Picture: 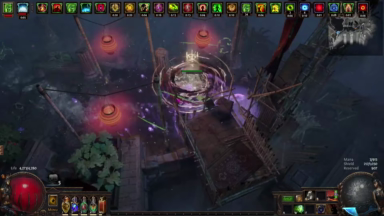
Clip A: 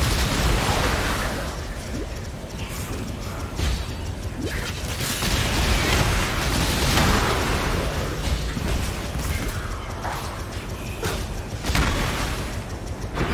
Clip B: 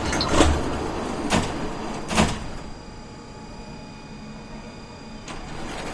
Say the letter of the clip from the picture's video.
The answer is A